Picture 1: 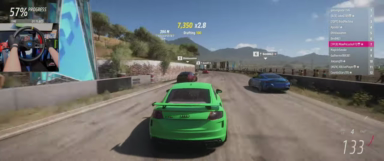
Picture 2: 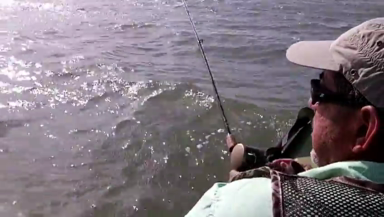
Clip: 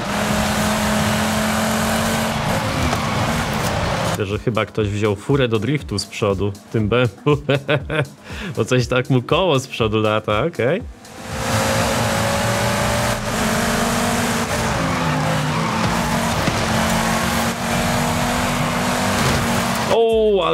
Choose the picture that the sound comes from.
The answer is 1